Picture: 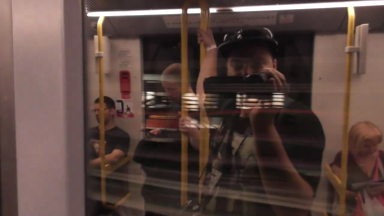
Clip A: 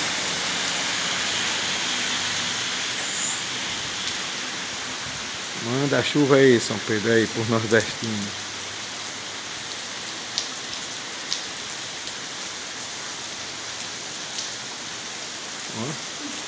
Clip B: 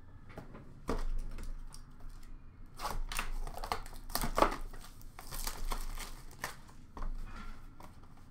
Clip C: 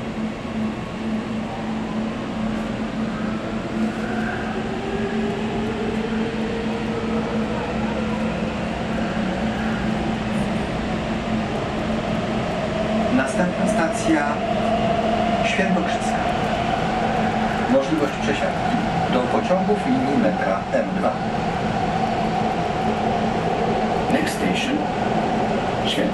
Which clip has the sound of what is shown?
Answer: C